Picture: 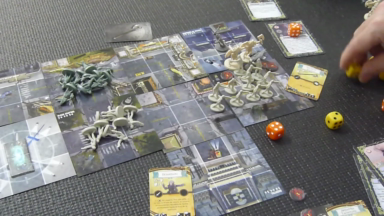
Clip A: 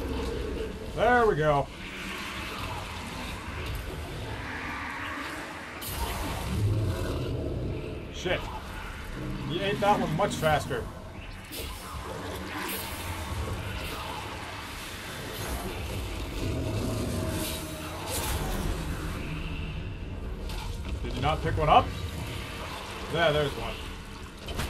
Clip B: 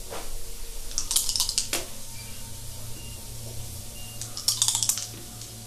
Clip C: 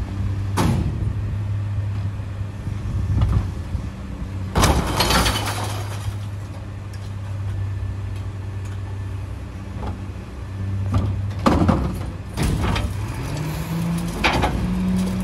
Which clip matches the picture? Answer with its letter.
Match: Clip B